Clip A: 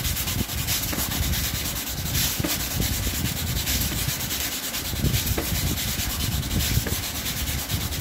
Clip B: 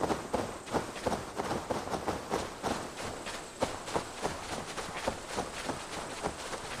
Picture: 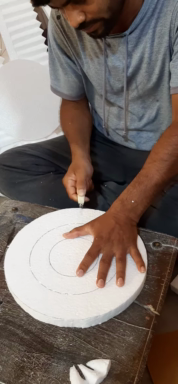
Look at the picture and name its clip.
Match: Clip A